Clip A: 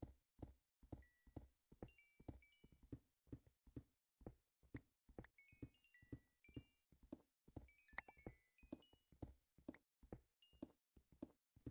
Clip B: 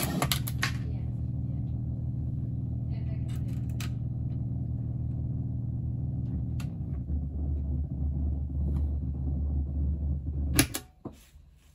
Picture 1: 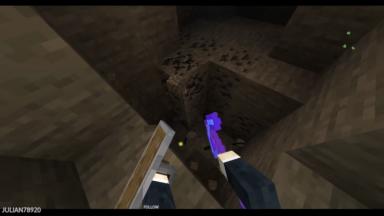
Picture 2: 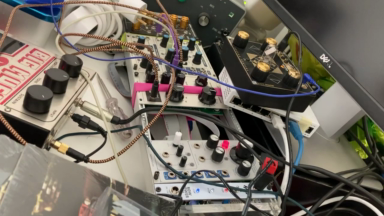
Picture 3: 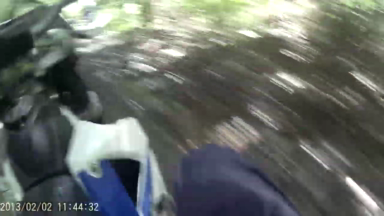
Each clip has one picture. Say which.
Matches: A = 1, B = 2